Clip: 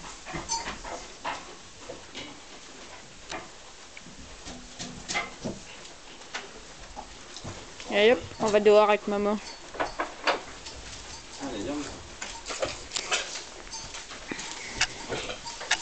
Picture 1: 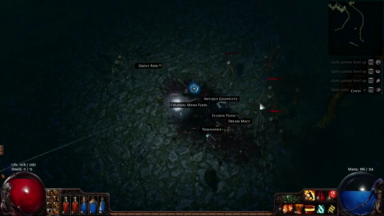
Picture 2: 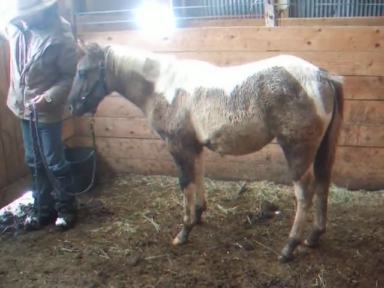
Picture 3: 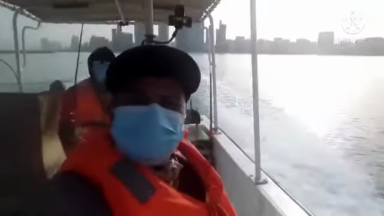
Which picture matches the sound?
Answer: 2